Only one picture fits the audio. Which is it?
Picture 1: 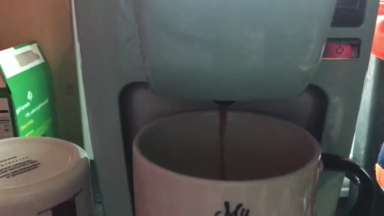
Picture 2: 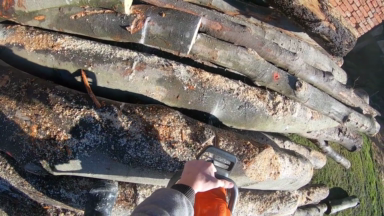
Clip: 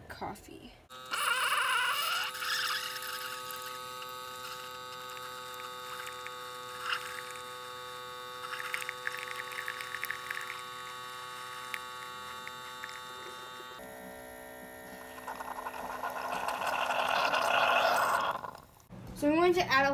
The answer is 1